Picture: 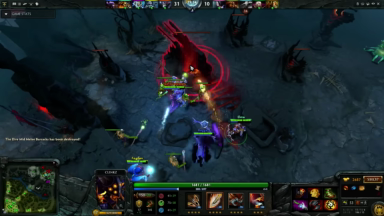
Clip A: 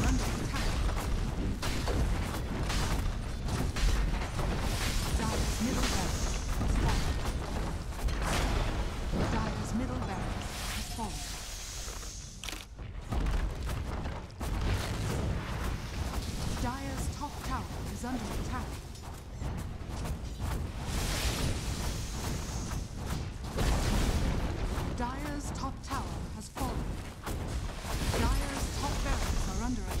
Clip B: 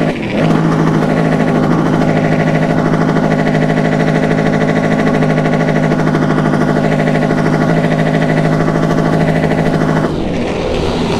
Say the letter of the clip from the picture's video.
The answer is A